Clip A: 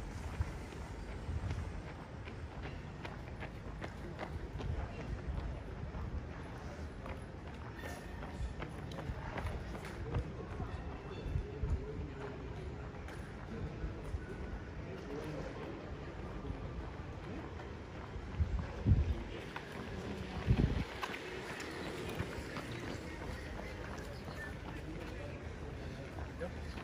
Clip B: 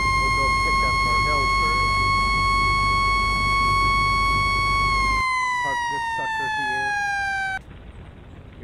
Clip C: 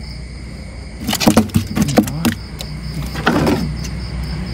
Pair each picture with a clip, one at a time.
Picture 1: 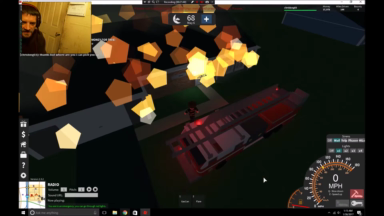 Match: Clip B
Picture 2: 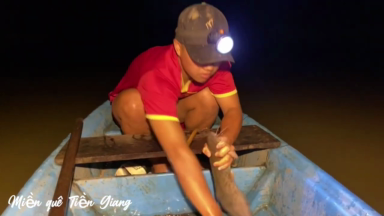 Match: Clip C